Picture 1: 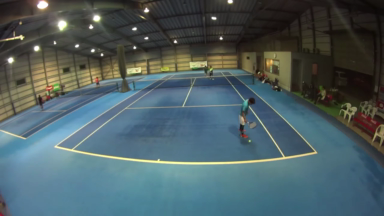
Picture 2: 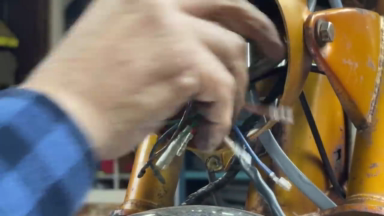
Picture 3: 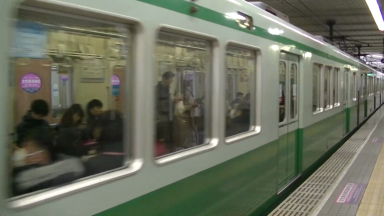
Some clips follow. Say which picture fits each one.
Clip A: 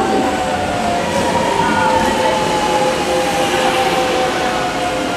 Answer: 3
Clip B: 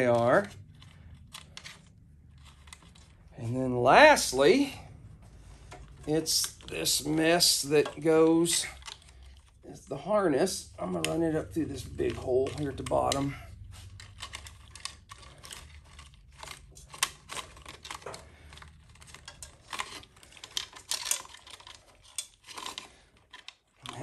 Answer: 2